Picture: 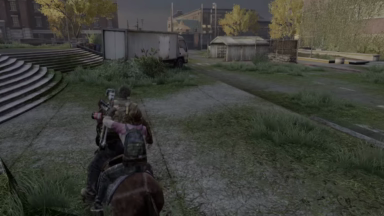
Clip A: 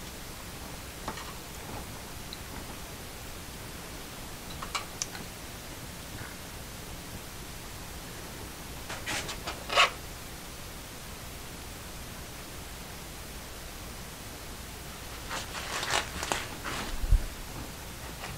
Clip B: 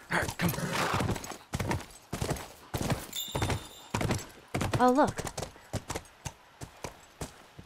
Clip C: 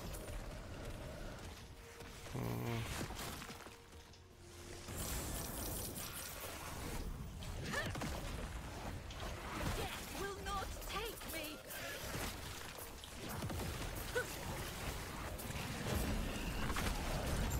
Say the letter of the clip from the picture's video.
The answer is B